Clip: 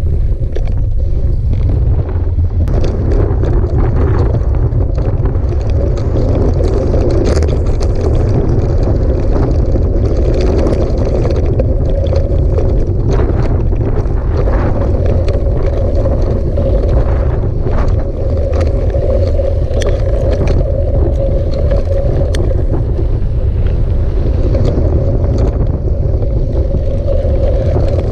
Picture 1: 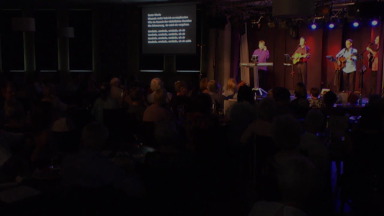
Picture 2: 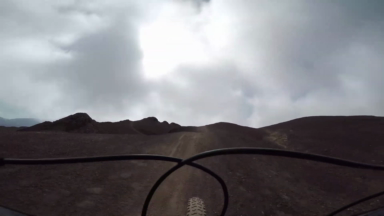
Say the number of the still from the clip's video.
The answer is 2